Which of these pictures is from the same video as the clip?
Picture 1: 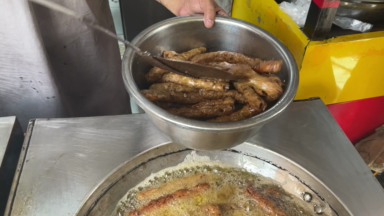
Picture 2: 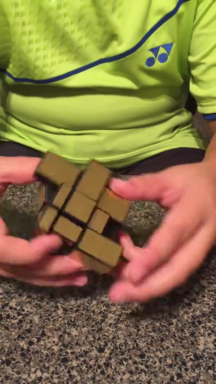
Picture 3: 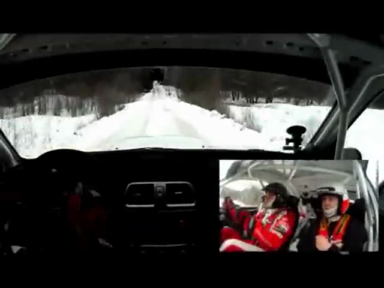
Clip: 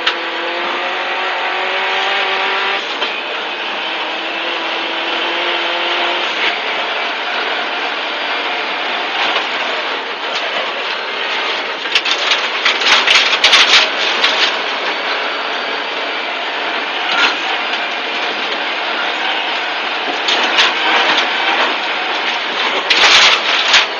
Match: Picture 3